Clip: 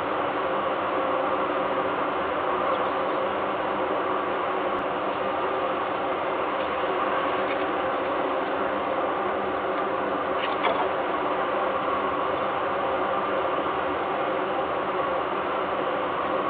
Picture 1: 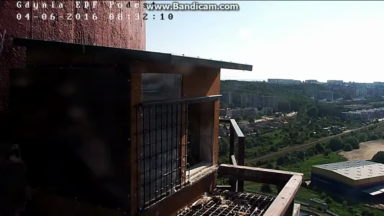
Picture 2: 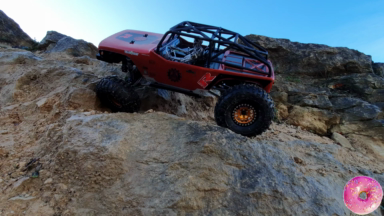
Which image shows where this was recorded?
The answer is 1